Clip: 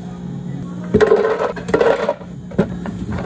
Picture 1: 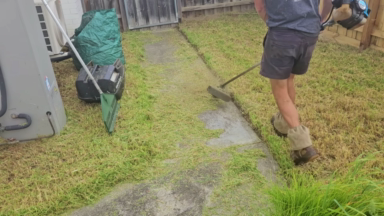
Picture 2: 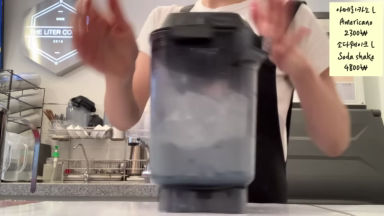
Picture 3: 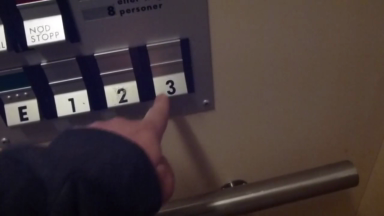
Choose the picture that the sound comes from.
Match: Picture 2